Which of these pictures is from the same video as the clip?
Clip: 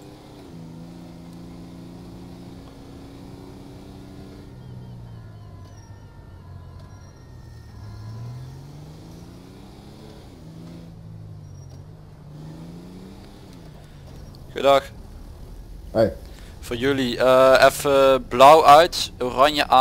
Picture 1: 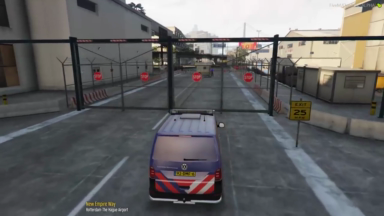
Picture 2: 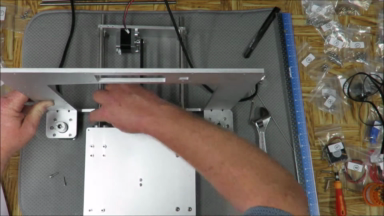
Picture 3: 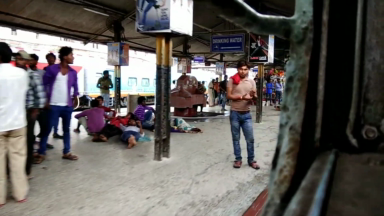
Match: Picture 1